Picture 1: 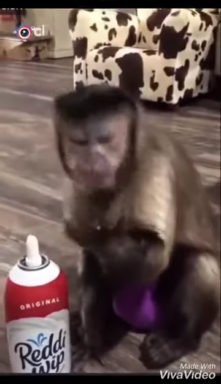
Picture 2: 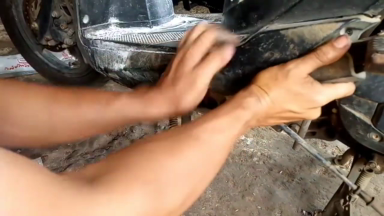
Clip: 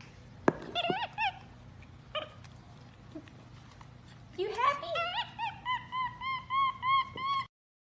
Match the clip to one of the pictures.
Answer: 1